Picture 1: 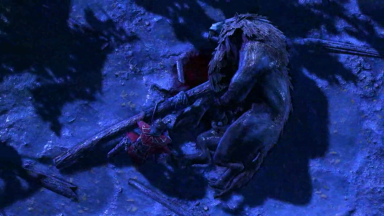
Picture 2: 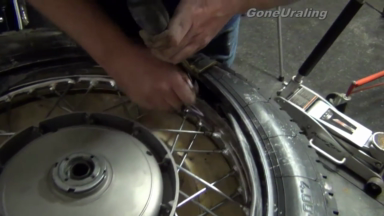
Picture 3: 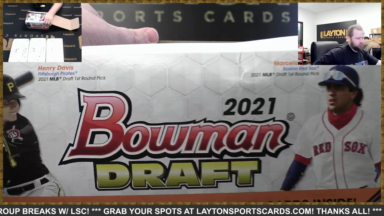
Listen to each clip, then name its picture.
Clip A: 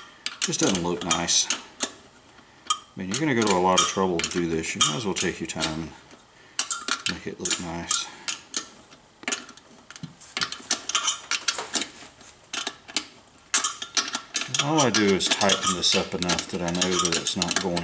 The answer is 2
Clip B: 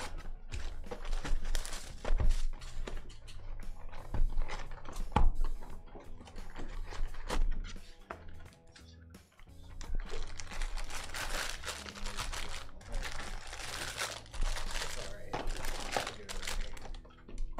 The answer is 3